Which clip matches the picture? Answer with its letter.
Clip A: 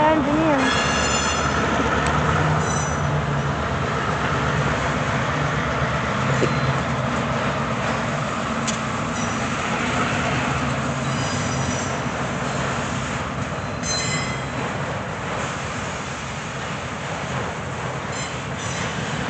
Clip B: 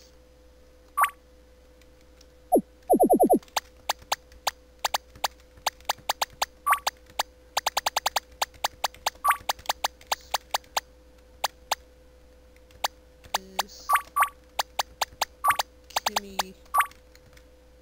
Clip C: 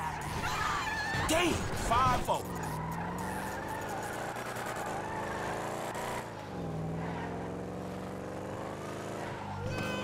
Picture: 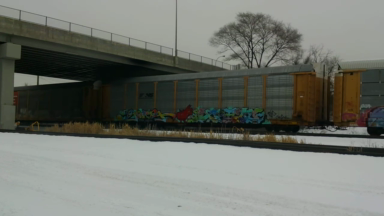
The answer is A